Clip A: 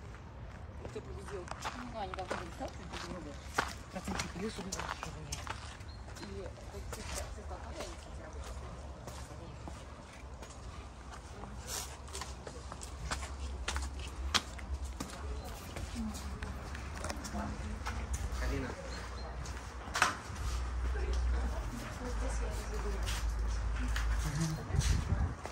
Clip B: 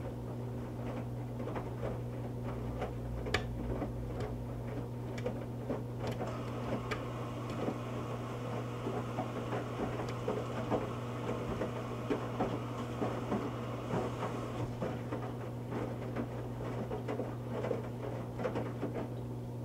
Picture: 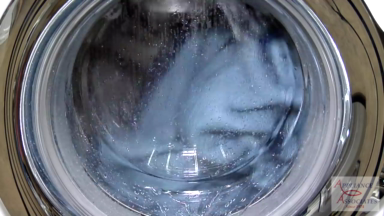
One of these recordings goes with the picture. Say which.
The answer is B